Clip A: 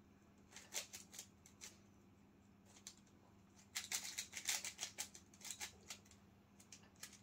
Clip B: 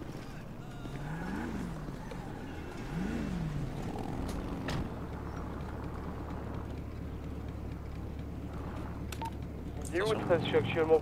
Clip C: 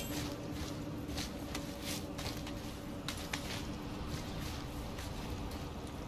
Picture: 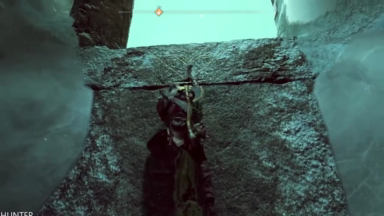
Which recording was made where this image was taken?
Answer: C